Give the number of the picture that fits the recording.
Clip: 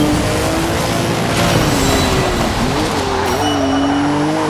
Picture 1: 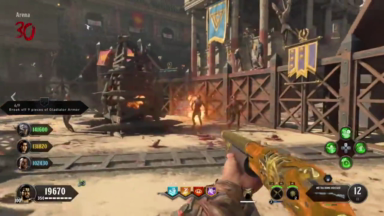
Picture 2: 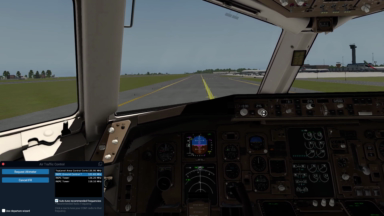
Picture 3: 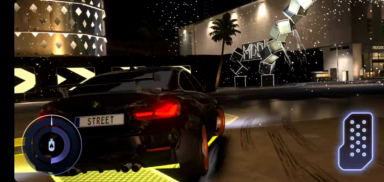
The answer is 3